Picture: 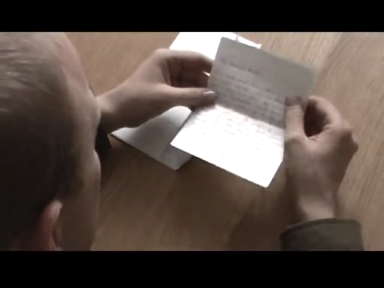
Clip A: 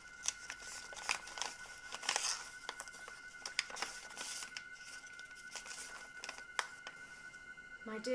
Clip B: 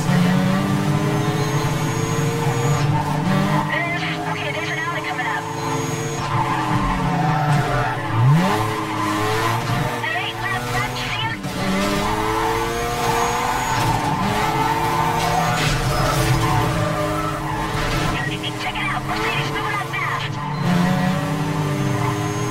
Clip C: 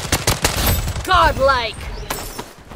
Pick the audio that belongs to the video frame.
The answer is A